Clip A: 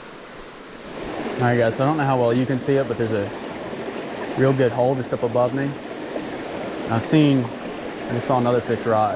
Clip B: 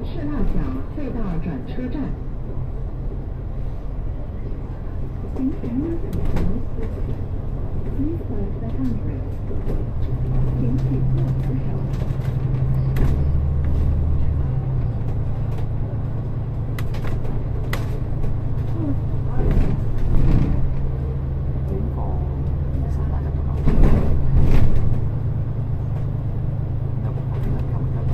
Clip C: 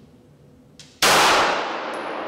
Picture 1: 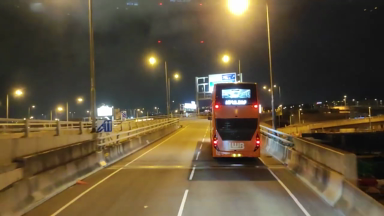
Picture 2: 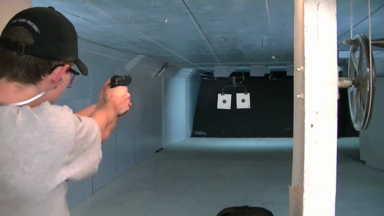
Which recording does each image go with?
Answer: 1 B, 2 C